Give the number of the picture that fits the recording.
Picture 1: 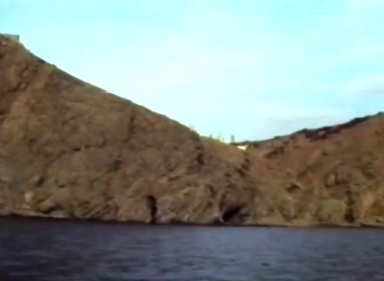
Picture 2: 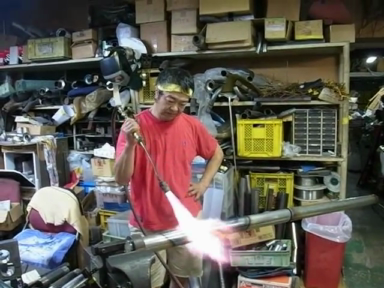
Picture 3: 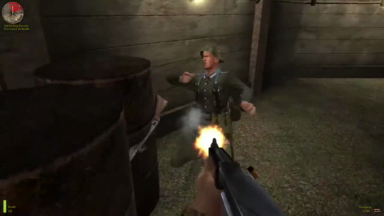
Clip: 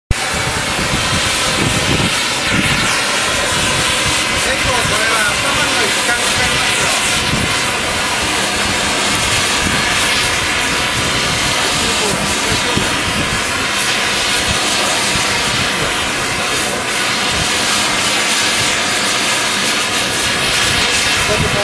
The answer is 2